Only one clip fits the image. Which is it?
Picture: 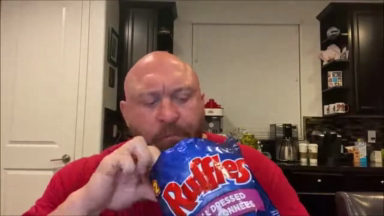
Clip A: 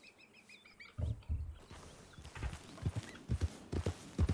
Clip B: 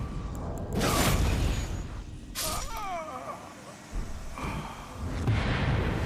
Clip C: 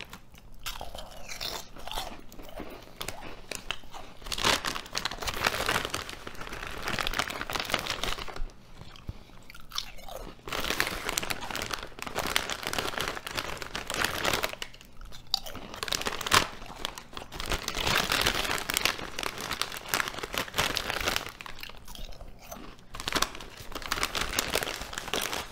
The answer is C